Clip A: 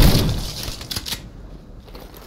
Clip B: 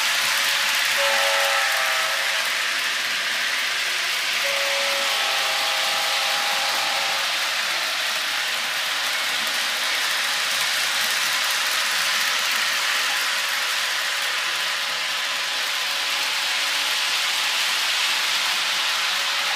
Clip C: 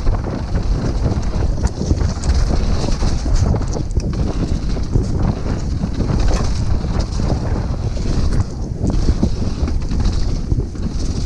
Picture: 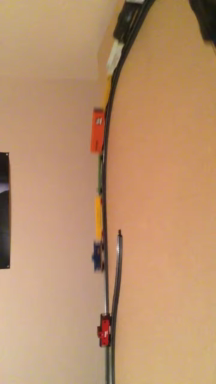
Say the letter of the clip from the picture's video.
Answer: B